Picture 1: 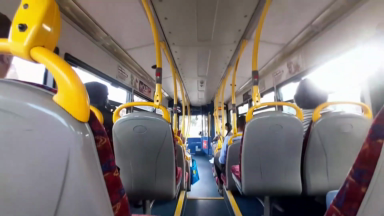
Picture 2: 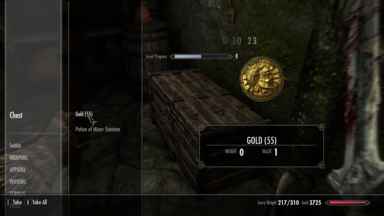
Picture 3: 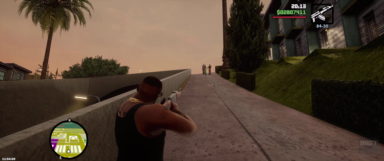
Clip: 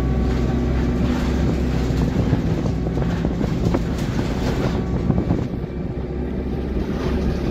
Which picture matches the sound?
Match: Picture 1